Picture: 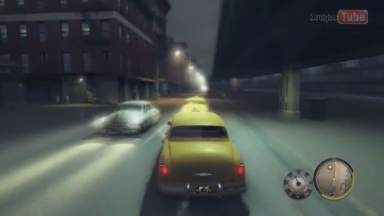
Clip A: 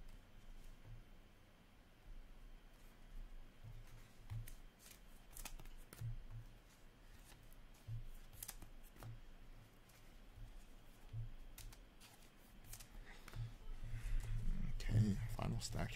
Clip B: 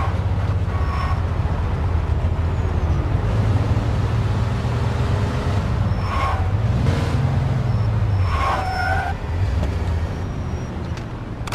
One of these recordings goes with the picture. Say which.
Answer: B